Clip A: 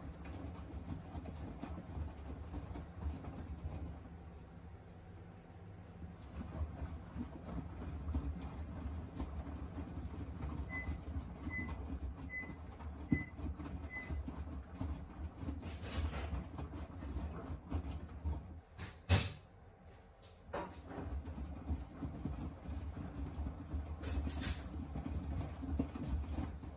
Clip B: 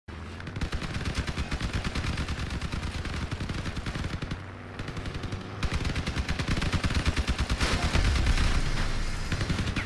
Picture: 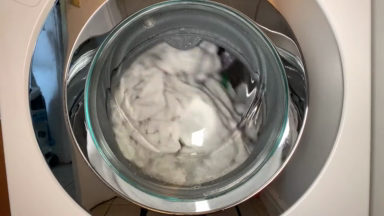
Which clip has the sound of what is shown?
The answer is A